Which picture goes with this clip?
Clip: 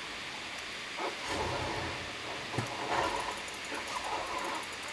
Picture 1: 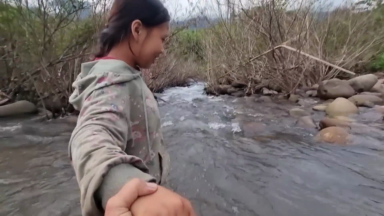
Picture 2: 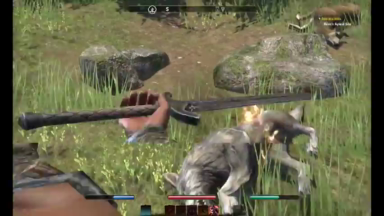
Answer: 2